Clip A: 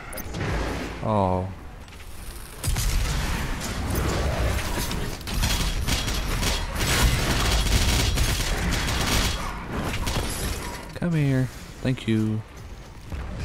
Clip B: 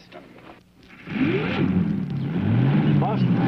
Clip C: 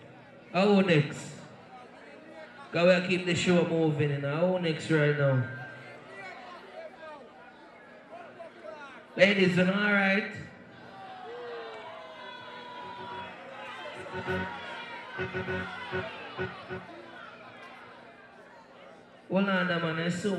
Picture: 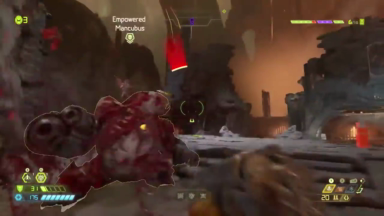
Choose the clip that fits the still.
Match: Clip A